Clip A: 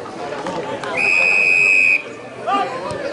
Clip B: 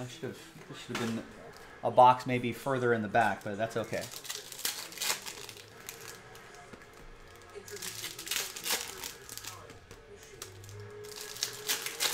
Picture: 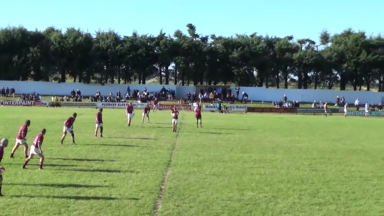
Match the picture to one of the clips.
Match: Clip A